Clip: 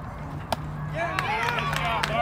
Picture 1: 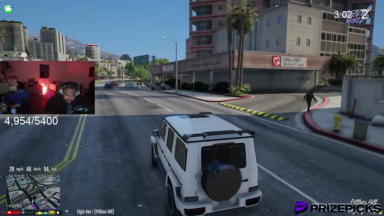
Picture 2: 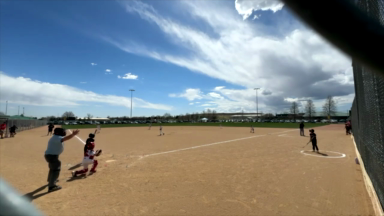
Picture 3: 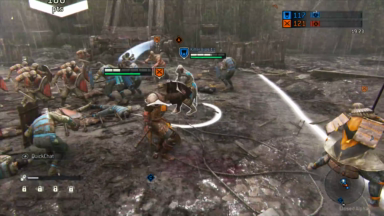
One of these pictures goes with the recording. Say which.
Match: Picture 2